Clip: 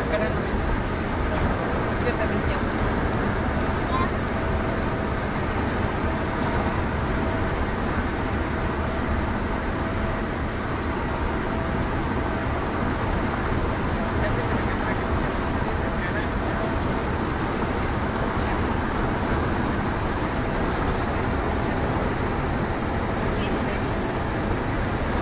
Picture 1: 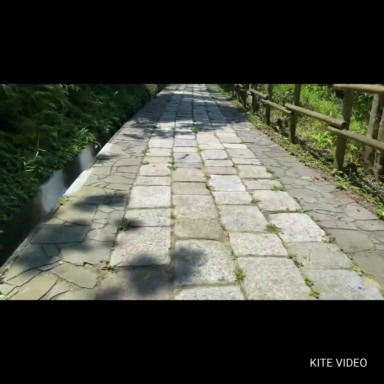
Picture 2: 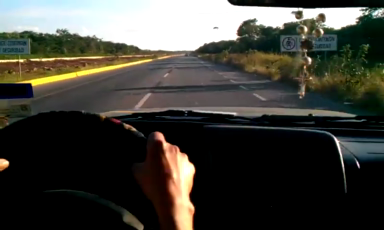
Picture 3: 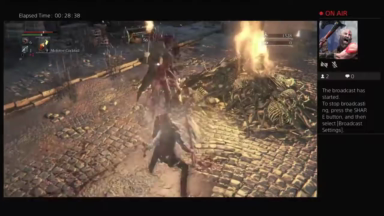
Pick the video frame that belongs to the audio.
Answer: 2